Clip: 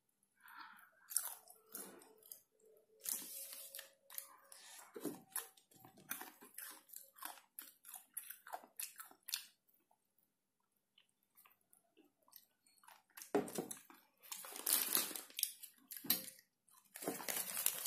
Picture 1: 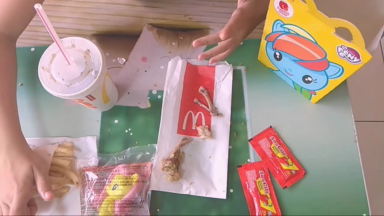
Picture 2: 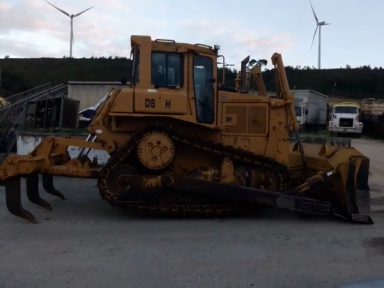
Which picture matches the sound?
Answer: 1